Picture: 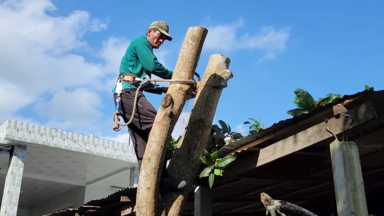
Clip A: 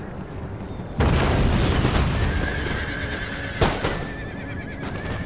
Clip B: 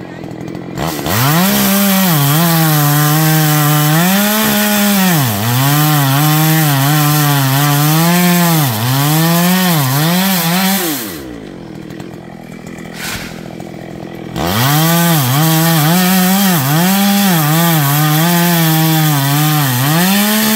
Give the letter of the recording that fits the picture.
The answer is B